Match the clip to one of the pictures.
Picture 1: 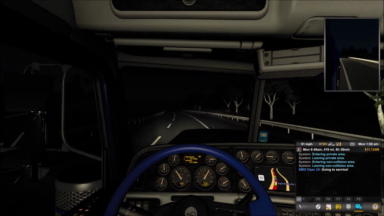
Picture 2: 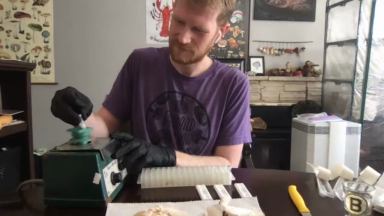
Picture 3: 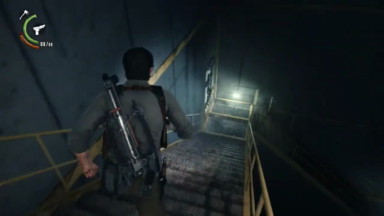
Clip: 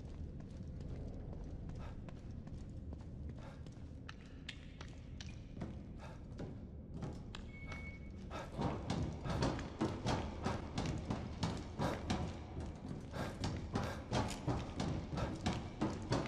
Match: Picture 3